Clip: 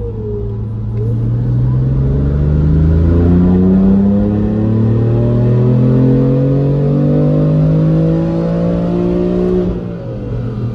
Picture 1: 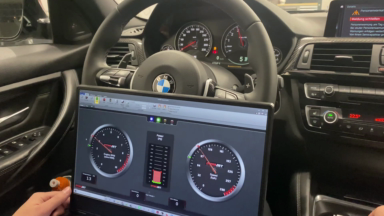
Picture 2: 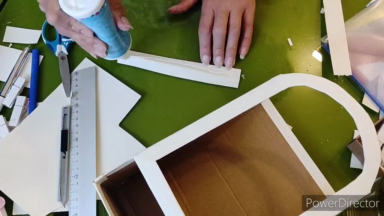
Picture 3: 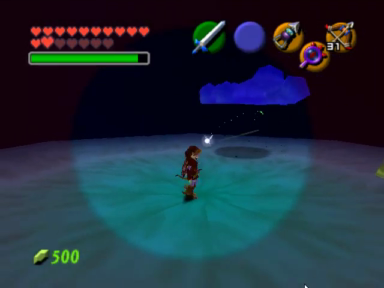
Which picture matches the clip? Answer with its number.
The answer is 1